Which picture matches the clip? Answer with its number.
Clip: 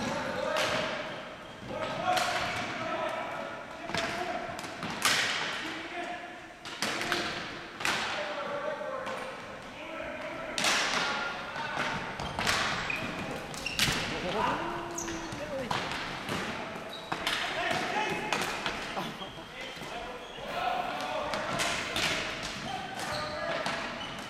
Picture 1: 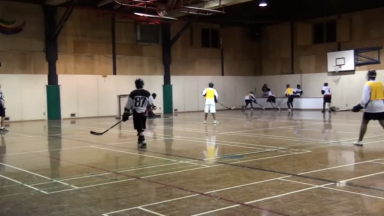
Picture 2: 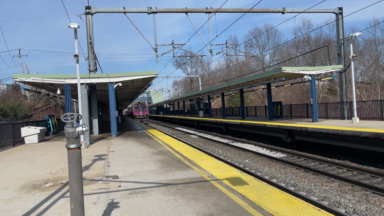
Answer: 1